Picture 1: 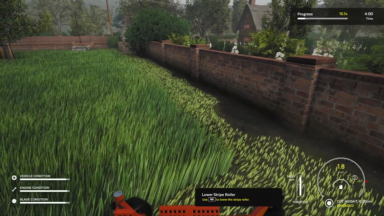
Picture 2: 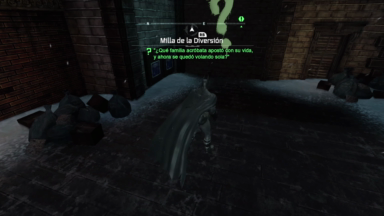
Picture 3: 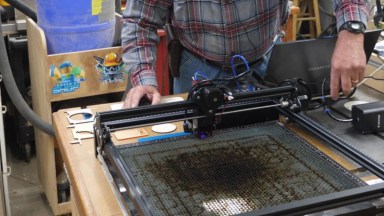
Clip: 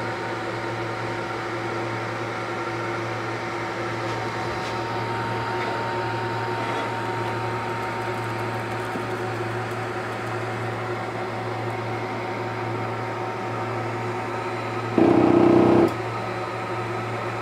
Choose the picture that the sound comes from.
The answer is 3